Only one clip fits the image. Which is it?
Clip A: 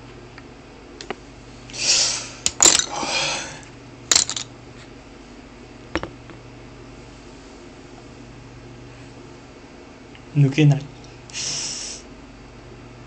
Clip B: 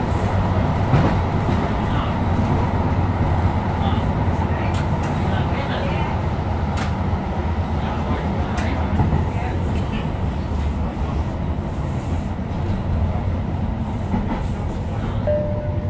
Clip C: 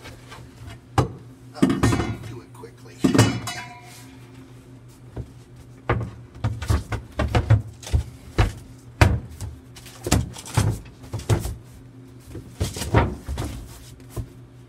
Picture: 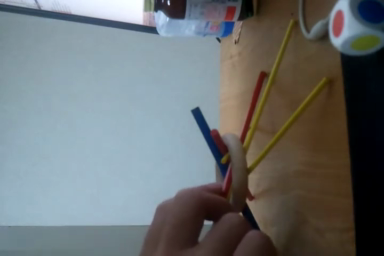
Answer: A